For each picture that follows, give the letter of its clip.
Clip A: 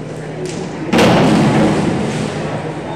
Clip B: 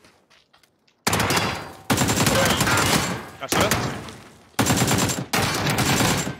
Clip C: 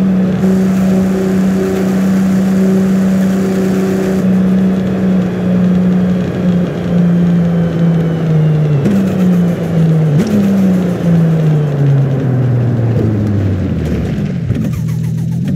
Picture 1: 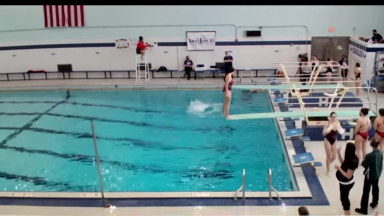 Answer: A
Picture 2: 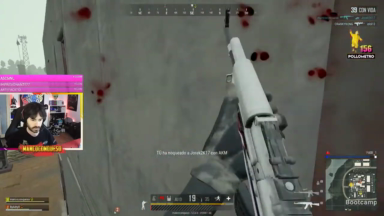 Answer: B